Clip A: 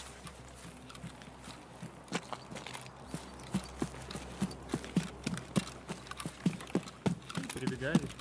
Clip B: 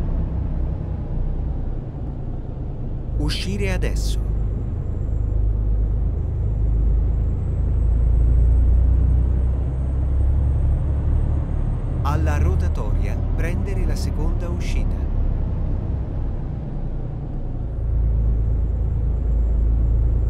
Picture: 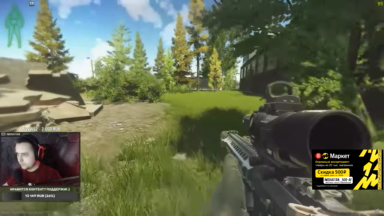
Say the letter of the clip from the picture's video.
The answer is A